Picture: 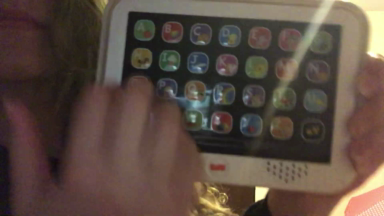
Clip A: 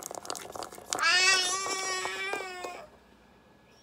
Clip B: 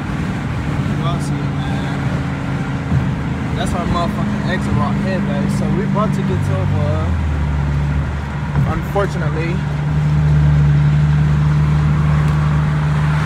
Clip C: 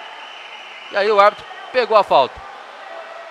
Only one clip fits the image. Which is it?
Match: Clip A